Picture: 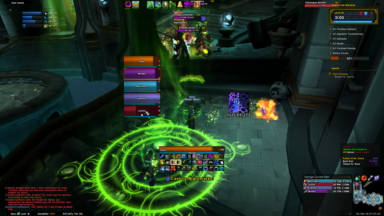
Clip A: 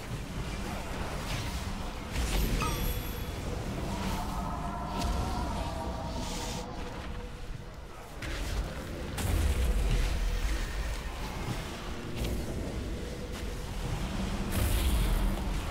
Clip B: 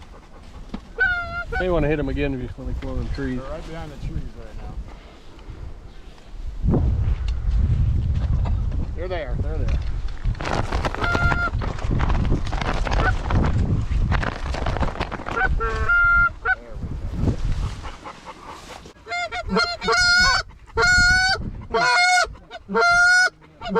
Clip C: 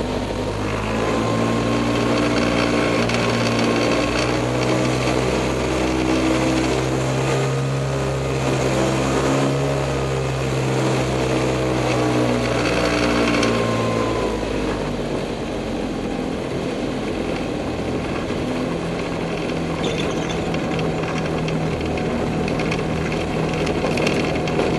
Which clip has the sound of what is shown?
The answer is A